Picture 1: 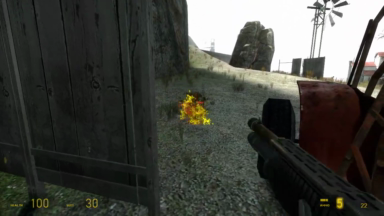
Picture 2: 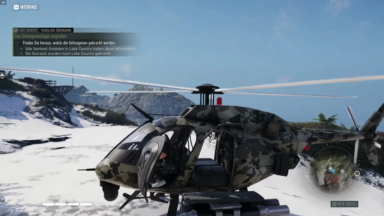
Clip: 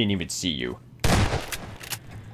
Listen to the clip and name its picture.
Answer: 1